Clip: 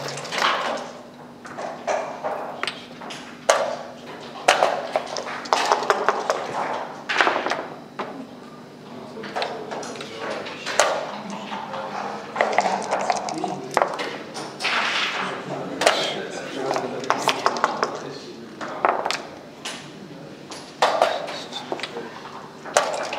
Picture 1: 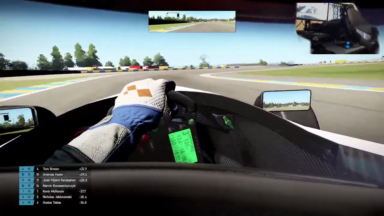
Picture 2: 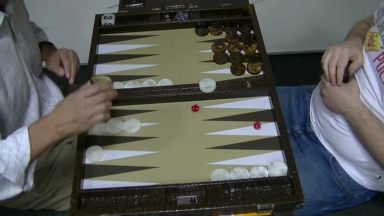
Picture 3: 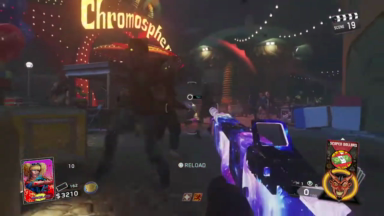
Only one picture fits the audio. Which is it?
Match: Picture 2